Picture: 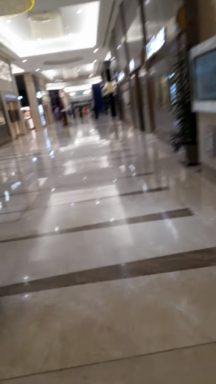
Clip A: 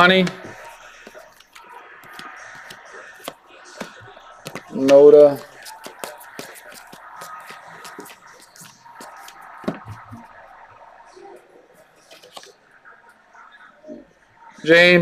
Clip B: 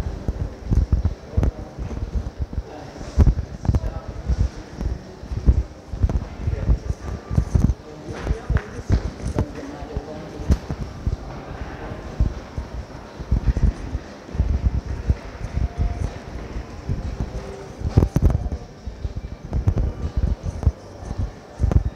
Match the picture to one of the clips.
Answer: B